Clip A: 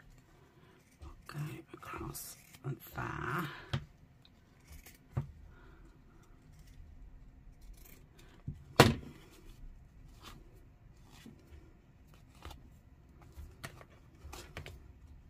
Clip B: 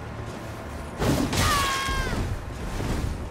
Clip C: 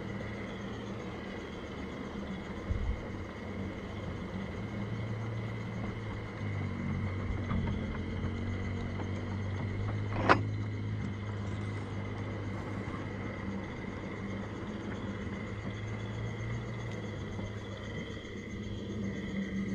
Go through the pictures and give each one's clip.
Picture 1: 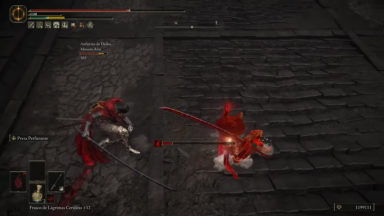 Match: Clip B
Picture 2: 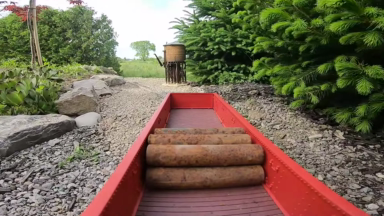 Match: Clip C